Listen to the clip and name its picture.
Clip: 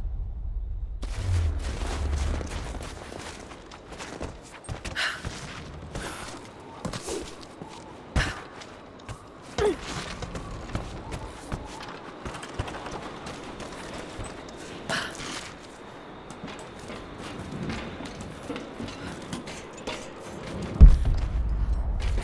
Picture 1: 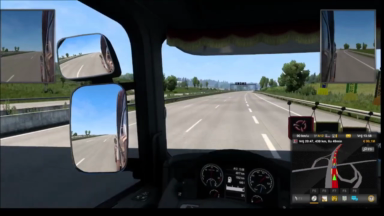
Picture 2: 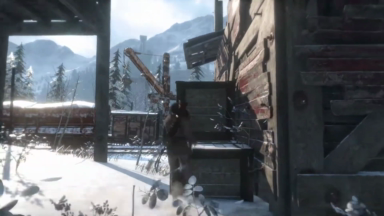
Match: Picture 2